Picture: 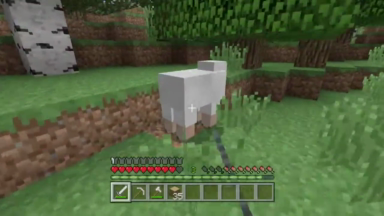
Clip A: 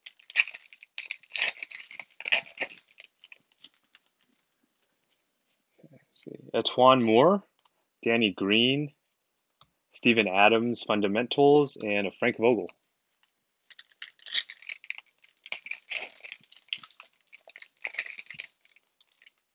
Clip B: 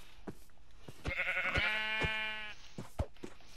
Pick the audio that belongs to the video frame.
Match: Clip B